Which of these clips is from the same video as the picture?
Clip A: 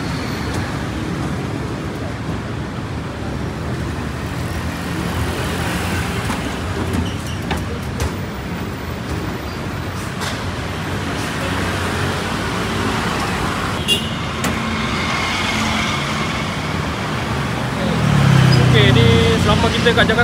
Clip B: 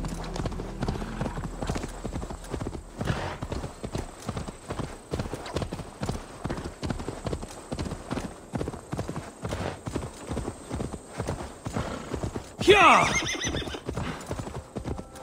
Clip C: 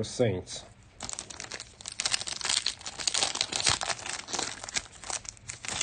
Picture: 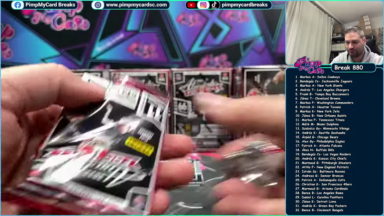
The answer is C